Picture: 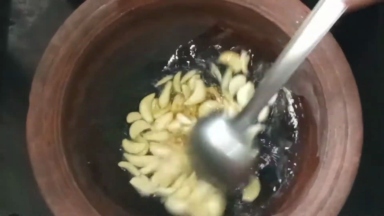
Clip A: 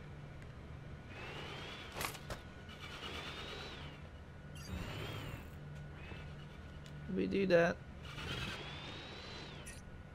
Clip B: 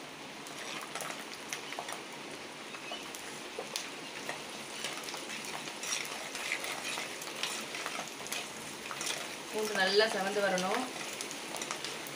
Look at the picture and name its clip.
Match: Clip B